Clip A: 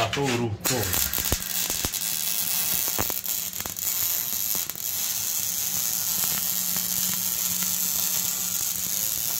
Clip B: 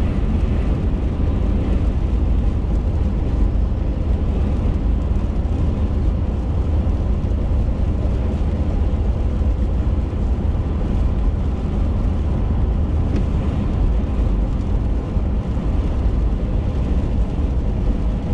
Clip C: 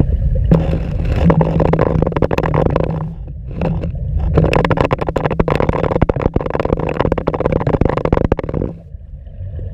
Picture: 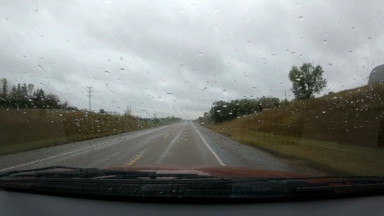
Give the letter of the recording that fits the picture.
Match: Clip B